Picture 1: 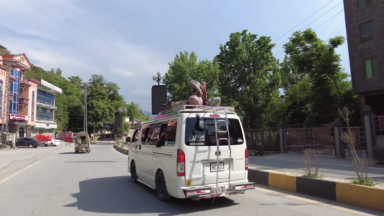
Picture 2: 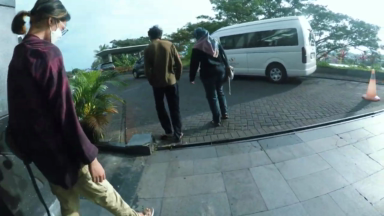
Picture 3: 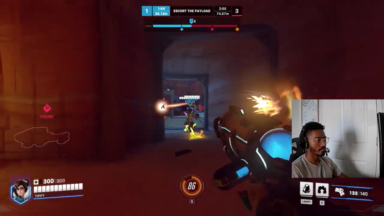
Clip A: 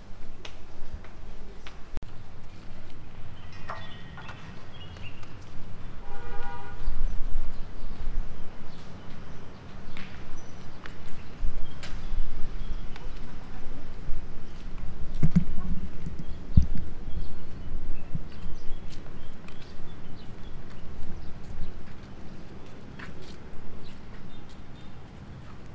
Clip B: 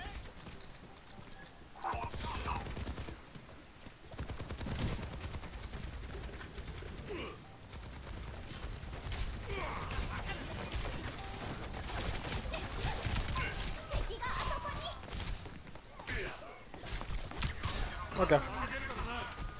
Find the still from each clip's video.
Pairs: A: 2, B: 3